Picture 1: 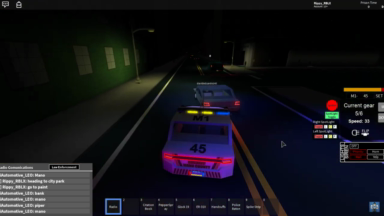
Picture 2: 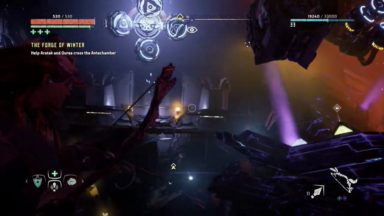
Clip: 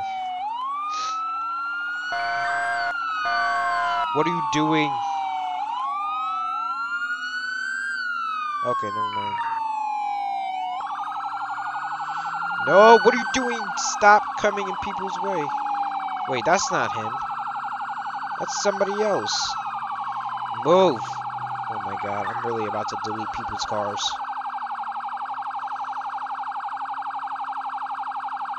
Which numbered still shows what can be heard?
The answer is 1